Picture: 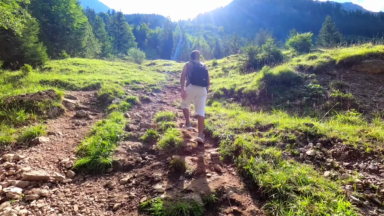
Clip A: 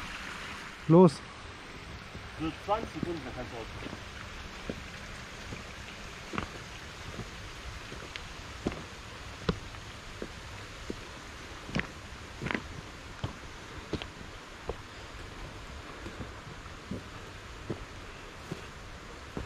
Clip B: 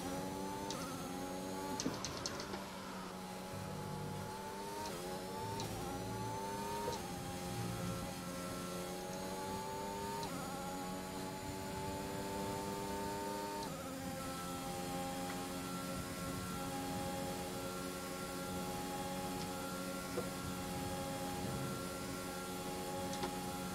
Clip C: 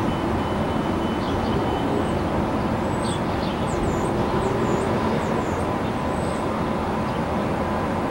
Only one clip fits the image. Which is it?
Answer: A